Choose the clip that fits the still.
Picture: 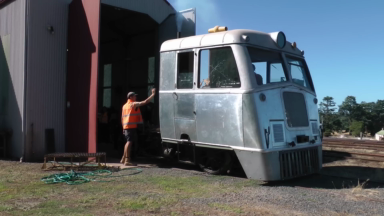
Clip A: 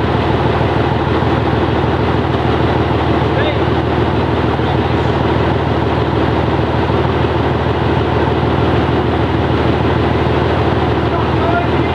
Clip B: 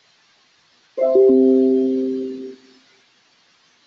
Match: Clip A